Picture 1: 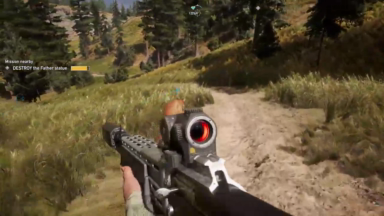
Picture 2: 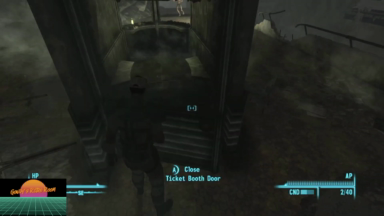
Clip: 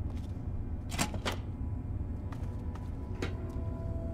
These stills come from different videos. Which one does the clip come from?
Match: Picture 2